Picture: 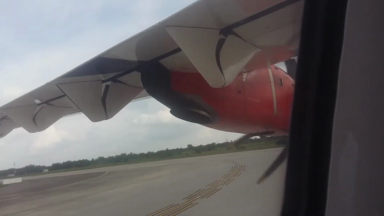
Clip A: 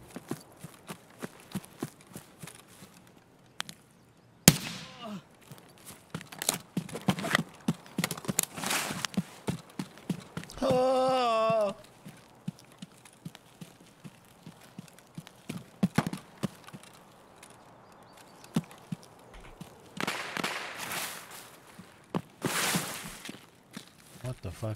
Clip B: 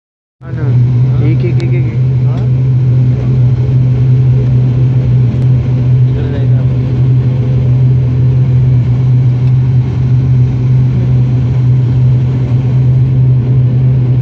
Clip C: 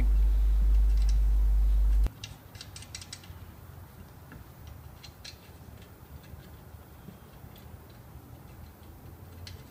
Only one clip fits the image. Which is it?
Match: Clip B